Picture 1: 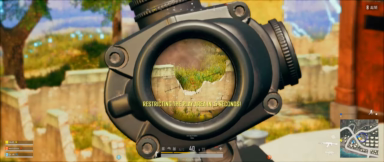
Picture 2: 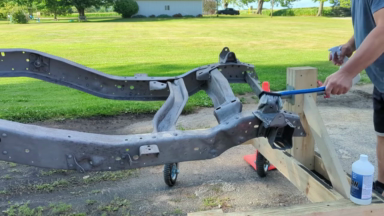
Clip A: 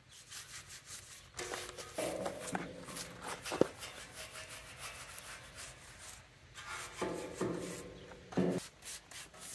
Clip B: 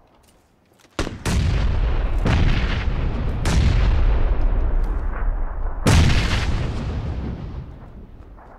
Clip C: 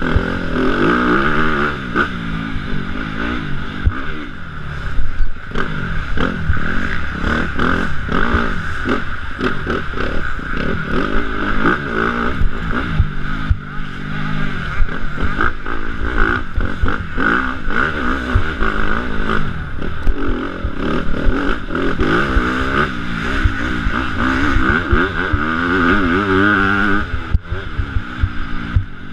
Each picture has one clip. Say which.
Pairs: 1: B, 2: A